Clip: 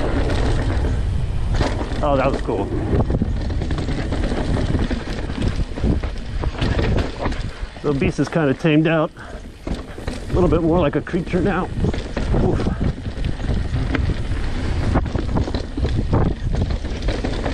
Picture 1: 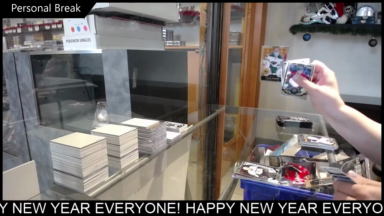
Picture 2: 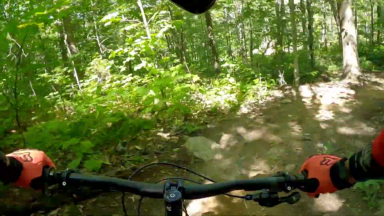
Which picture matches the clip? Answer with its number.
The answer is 2